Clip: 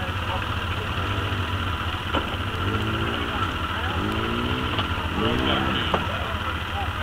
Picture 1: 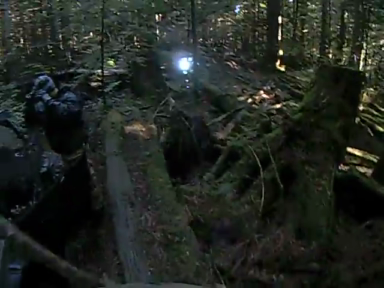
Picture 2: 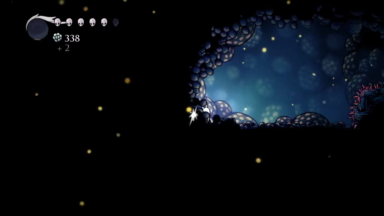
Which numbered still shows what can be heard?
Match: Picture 1